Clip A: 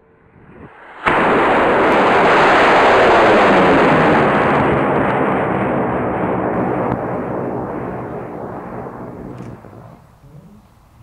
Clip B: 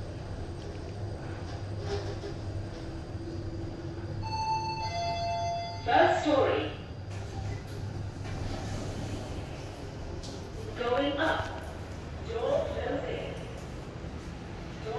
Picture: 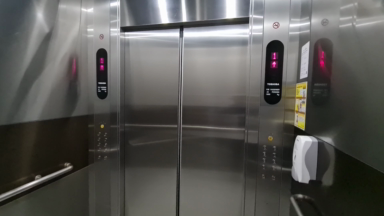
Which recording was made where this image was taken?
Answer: B